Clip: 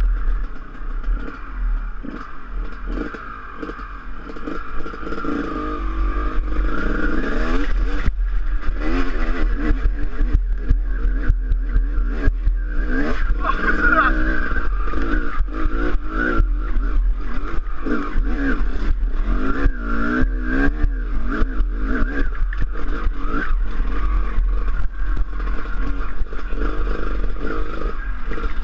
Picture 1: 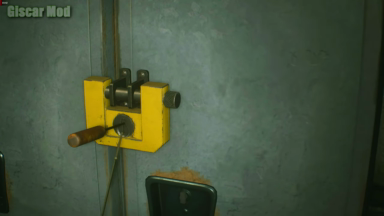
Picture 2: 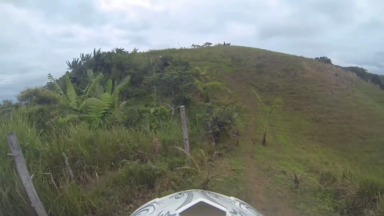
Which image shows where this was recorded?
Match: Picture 2